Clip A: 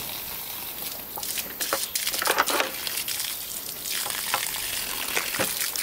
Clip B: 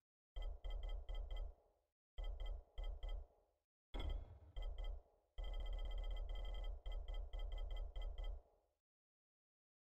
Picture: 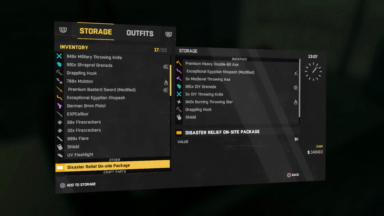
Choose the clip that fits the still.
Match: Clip B